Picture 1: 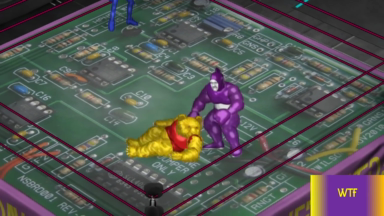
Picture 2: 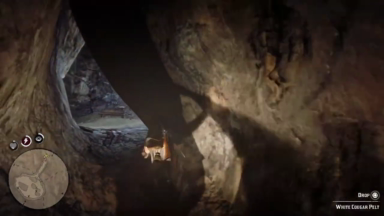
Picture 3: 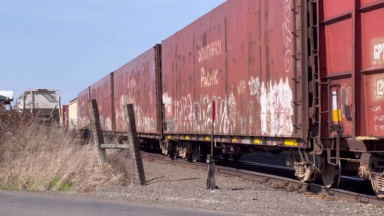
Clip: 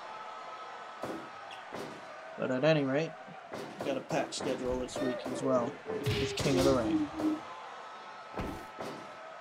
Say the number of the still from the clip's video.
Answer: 1